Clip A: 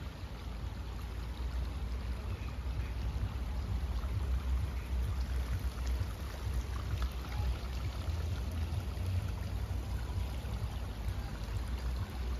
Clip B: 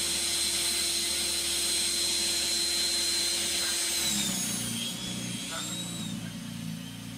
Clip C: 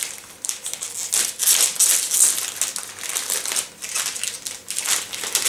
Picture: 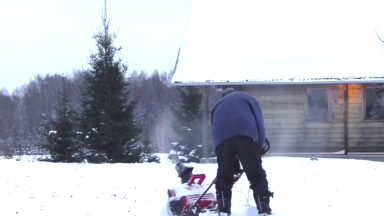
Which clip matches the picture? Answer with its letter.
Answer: B